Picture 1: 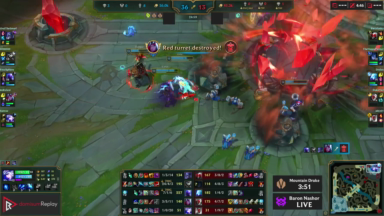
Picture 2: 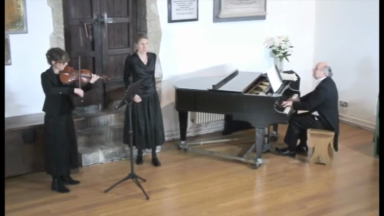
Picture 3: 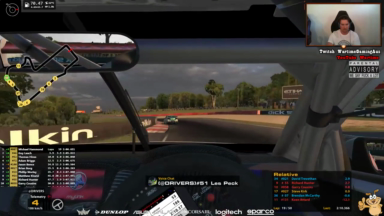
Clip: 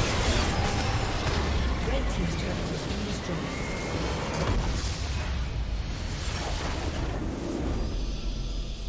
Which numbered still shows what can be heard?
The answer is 1